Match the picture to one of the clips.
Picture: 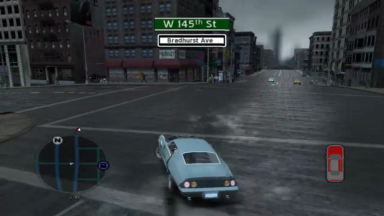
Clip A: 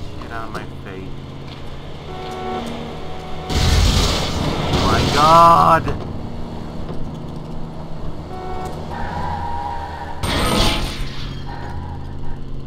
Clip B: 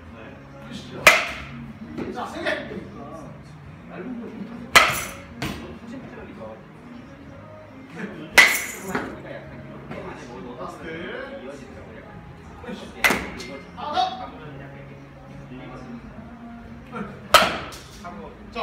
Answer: A